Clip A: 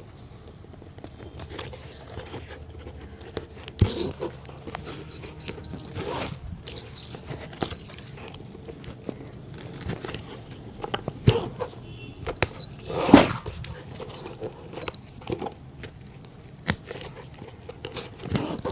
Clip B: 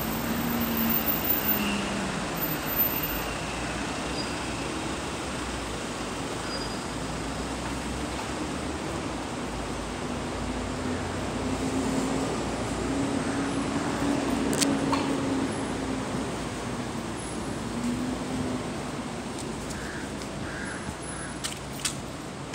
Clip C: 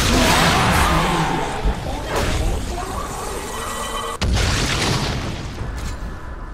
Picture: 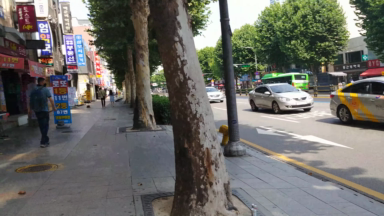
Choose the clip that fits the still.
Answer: B